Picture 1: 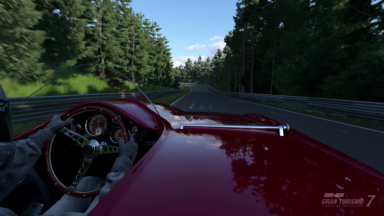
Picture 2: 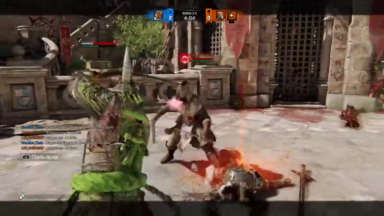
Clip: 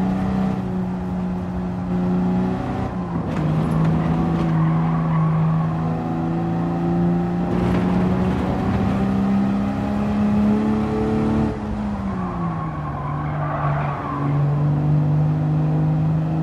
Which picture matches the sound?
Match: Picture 1